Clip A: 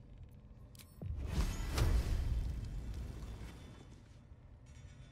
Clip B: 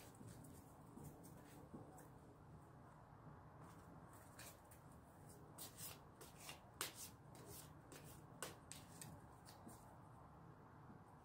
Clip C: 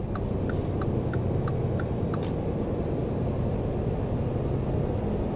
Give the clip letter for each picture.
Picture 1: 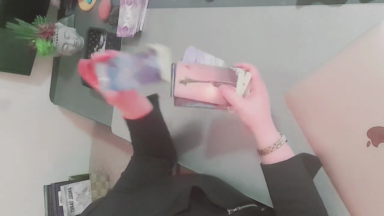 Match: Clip B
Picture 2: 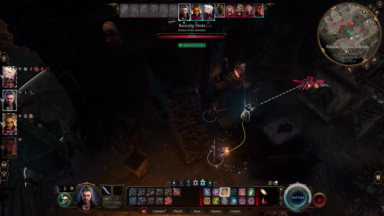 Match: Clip A